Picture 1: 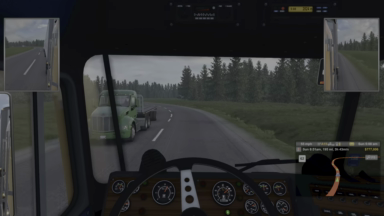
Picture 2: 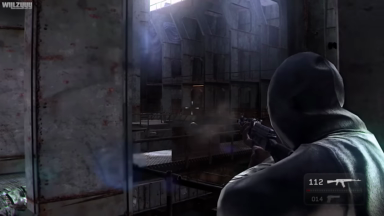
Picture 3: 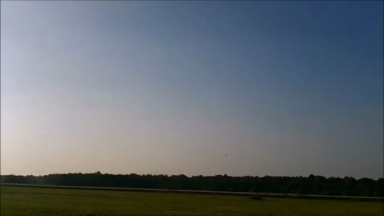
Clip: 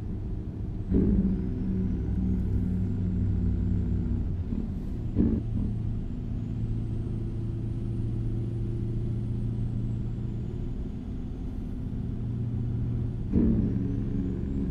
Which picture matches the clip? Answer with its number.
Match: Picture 1